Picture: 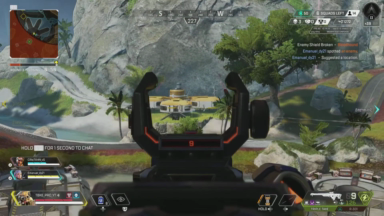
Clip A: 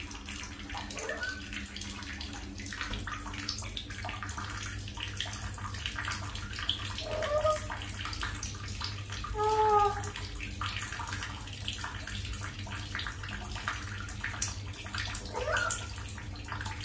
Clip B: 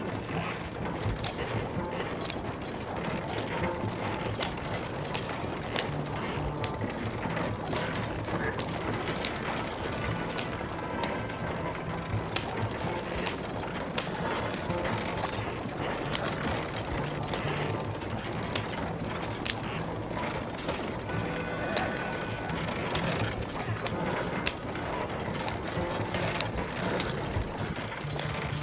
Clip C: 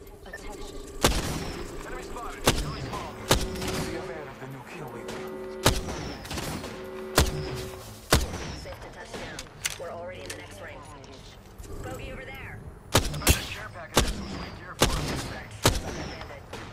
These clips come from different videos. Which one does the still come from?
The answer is C